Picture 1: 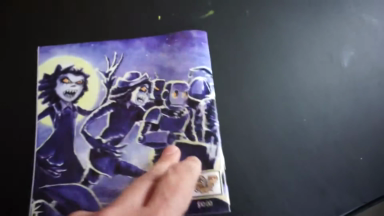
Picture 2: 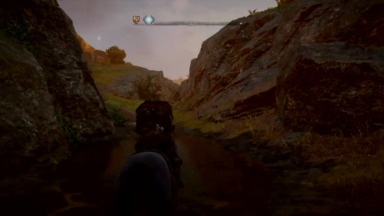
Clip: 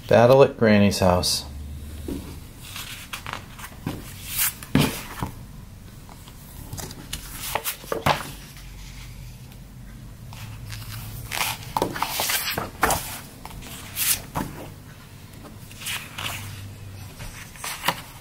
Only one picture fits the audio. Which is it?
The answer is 1